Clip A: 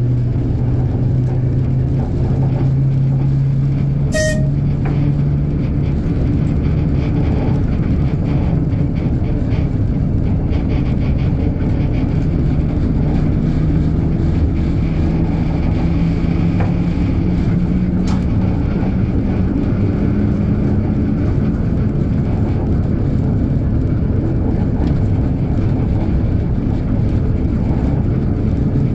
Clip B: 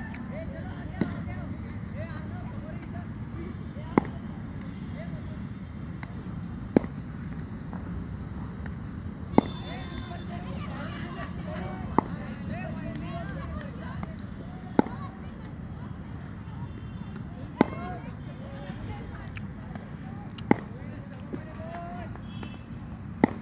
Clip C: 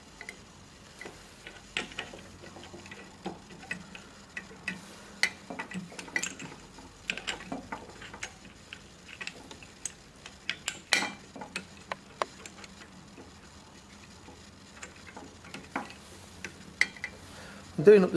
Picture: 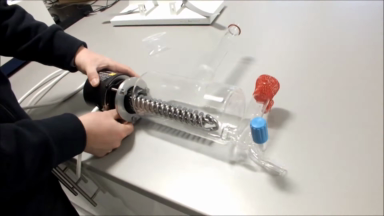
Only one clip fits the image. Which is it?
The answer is C